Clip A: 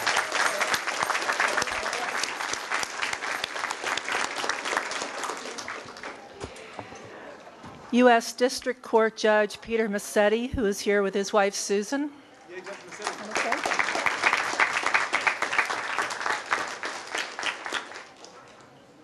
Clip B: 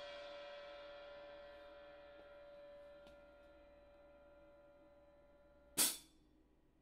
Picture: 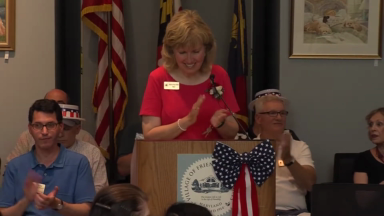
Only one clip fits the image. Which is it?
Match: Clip A